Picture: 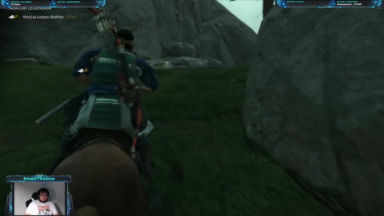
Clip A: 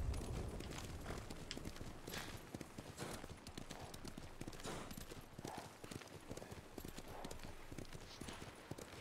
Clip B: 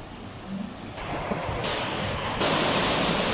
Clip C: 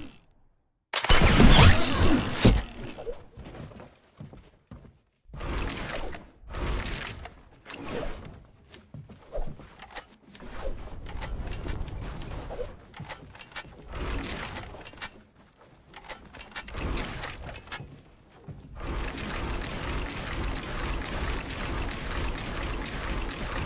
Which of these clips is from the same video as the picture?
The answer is A